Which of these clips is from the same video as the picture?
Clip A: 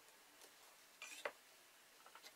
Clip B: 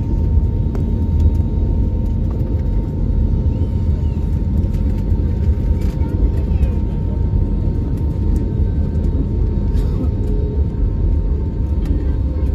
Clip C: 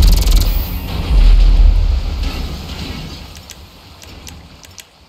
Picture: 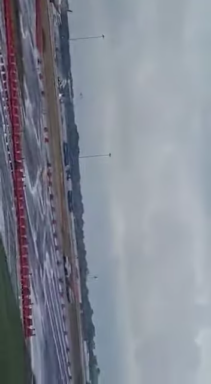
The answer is B